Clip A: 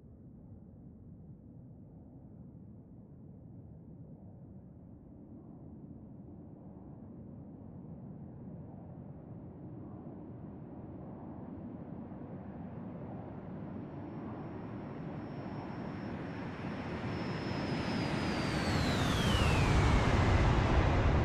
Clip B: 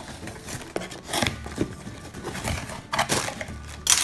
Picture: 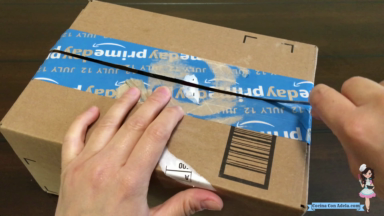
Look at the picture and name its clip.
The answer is B